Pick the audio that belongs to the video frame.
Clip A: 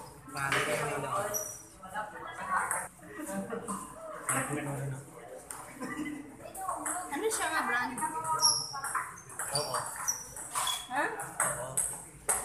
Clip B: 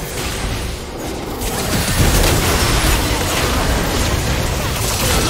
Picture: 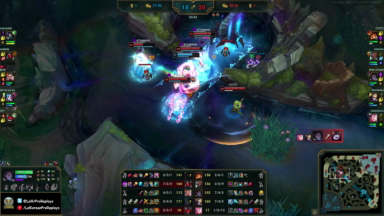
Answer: B